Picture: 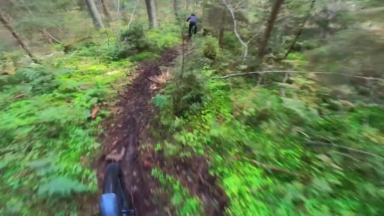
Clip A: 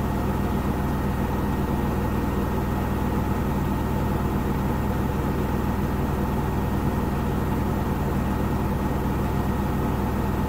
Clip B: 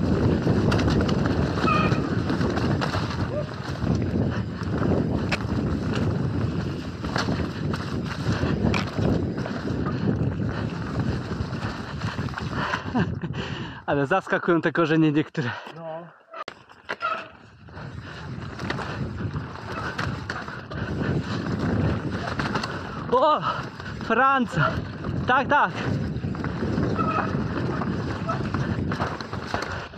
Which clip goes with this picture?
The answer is B